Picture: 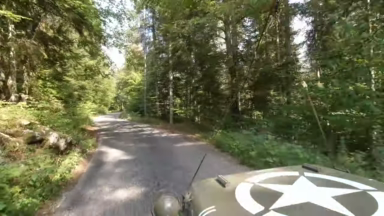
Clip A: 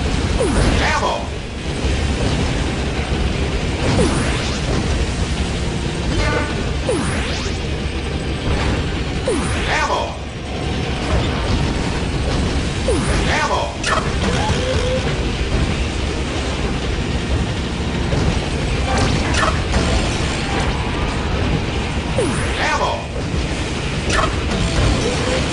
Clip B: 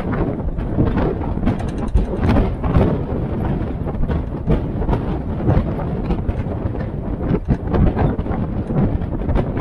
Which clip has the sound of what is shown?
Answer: B